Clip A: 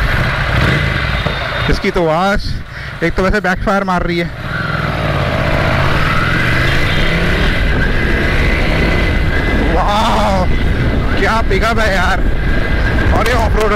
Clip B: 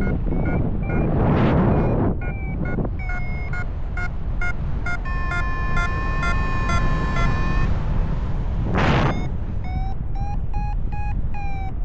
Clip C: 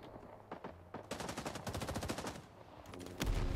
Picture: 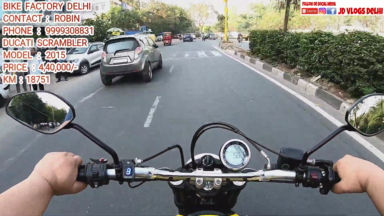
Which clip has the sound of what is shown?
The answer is A